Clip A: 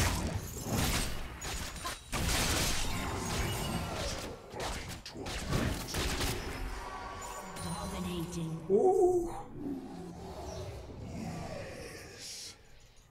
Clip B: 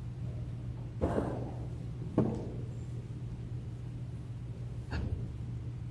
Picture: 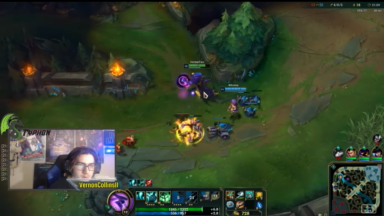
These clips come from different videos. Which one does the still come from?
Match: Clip A